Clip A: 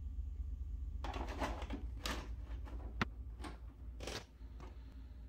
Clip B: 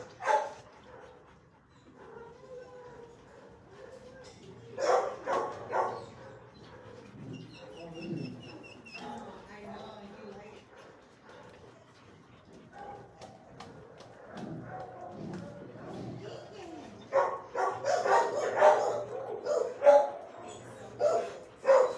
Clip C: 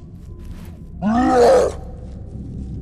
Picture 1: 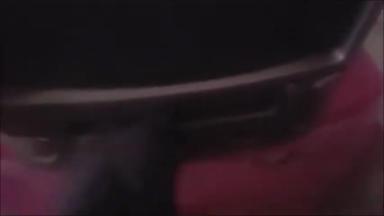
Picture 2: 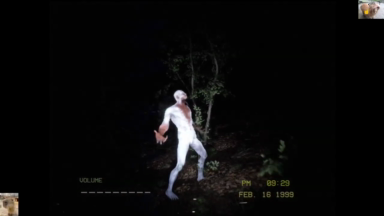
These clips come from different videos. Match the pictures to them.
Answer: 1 A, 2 C